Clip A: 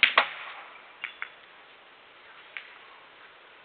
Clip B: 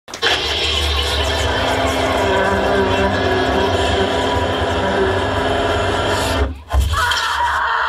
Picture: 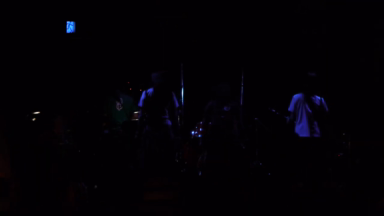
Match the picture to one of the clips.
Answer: B